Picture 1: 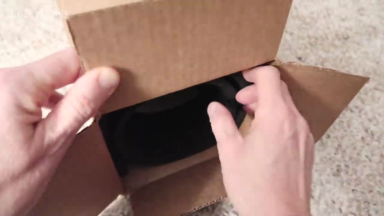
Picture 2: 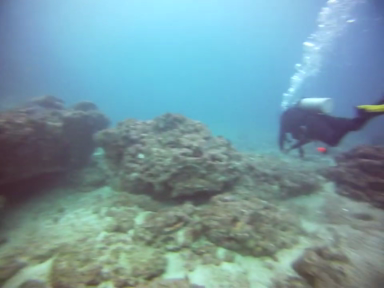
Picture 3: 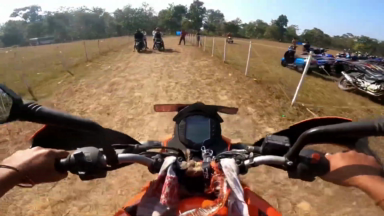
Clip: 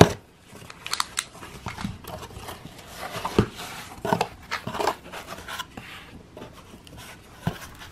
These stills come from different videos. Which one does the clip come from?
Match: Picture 1